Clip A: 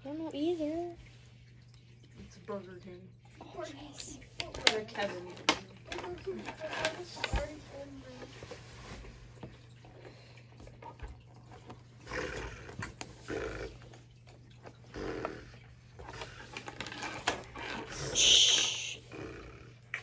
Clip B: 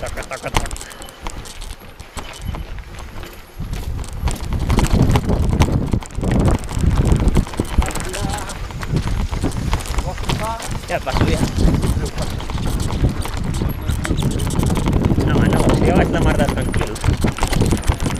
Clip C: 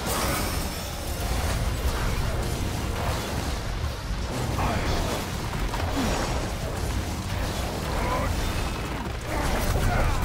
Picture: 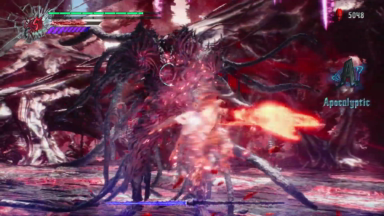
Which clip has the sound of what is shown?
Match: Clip C